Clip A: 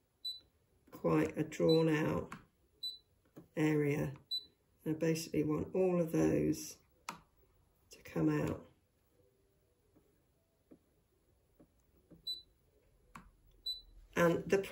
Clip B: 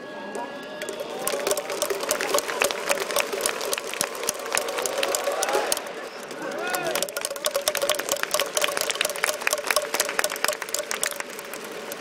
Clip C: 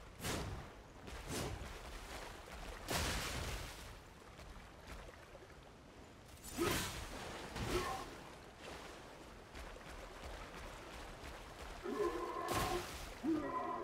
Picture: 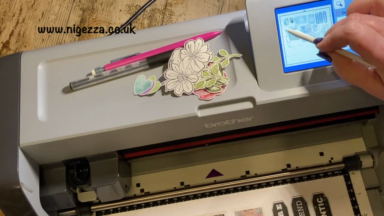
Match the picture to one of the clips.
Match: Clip A